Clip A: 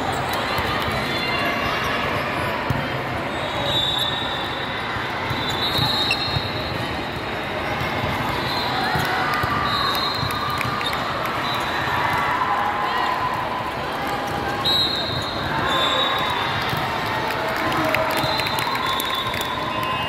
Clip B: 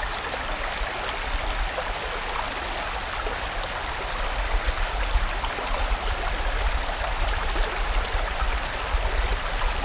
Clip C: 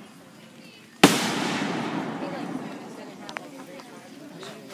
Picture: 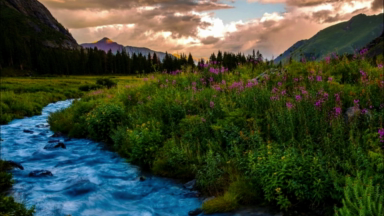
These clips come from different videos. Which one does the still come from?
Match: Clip B